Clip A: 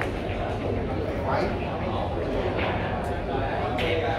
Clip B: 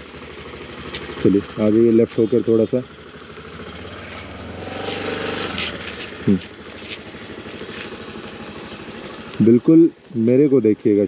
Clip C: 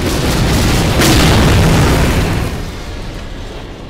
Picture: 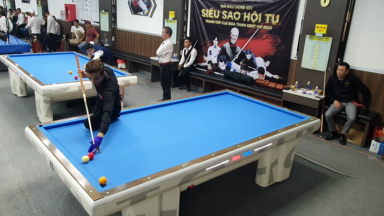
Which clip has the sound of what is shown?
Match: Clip A